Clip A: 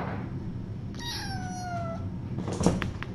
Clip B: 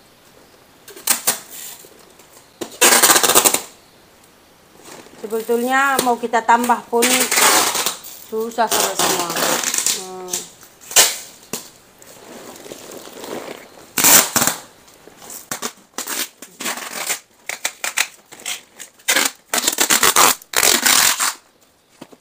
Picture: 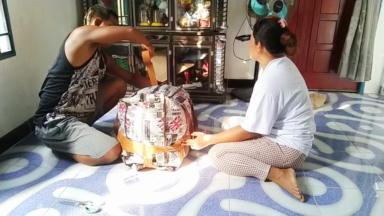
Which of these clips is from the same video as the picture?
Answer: B